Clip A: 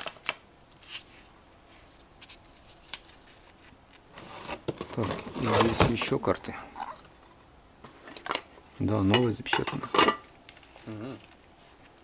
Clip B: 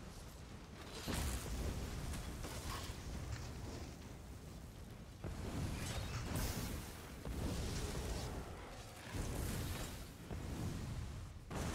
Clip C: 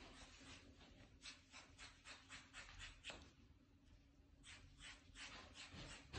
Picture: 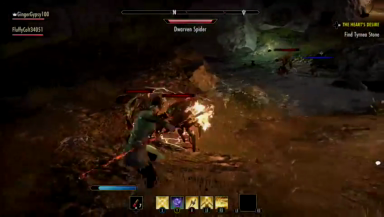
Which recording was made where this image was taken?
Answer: B